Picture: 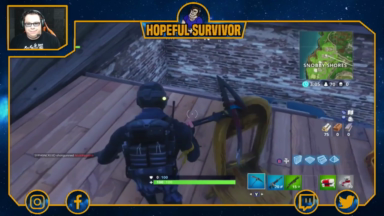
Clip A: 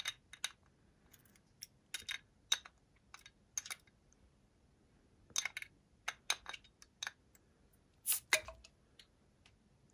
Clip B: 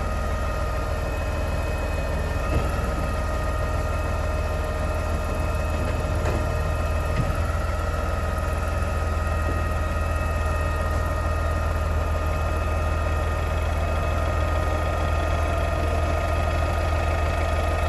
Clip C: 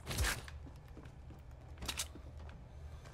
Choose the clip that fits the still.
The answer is C